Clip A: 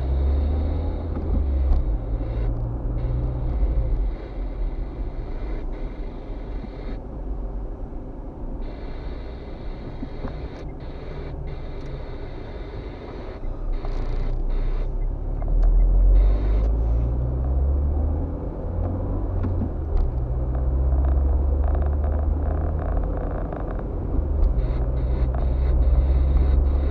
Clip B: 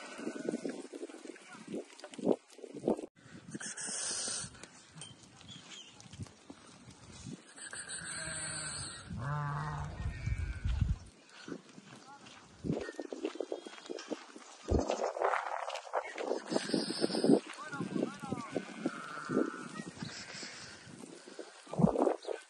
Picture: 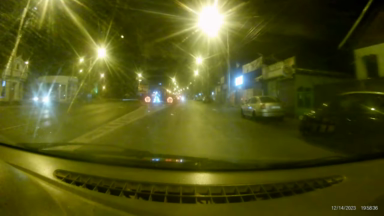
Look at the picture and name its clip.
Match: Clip A